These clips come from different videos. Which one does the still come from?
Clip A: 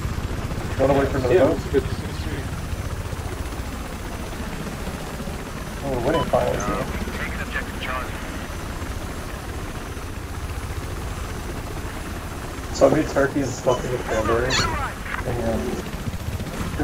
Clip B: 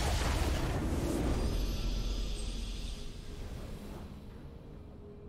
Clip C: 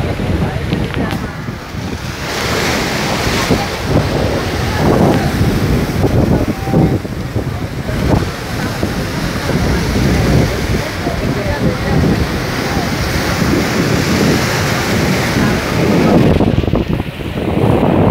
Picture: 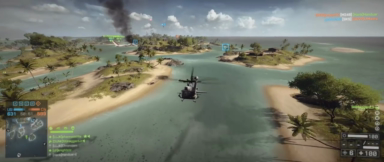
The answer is A